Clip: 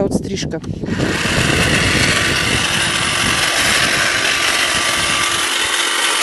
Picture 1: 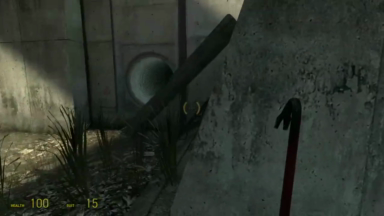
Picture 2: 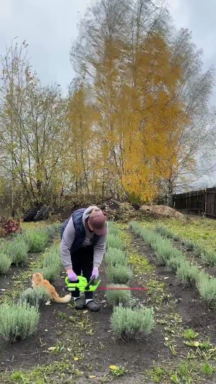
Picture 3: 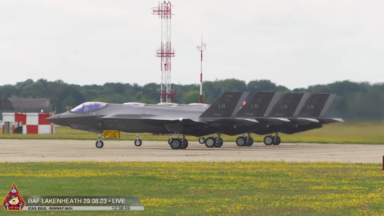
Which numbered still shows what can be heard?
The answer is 2